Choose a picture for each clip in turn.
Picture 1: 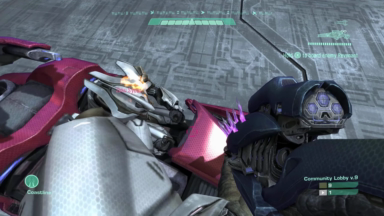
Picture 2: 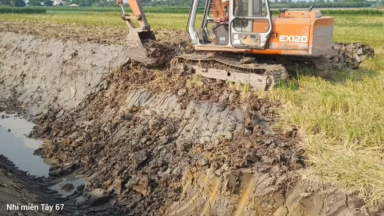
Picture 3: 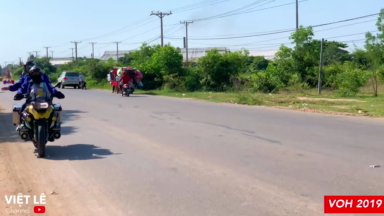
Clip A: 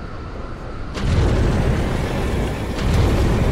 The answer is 1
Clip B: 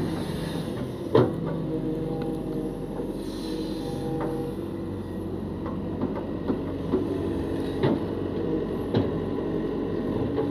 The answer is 2